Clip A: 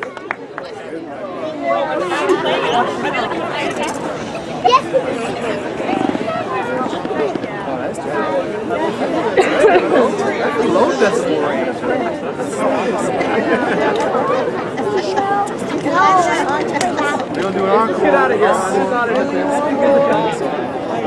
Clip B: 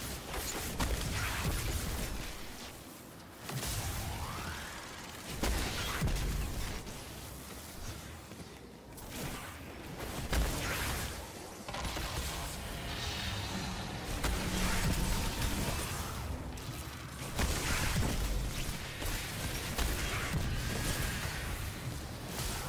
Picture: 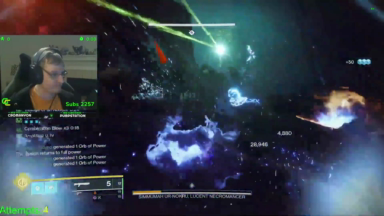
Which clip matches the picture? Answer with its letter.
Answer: B